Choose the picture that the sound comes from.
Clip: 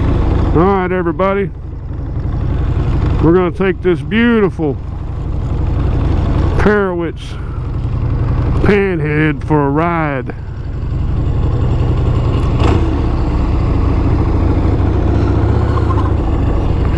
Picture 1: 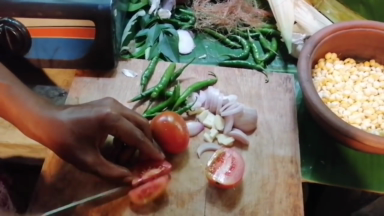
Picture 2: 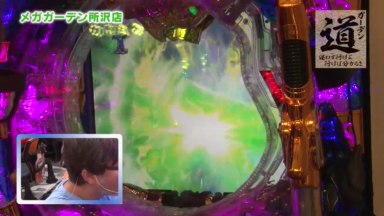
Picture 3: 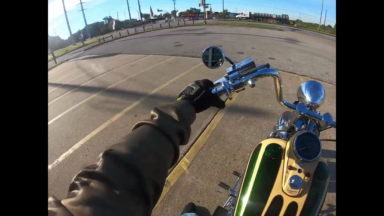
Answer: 3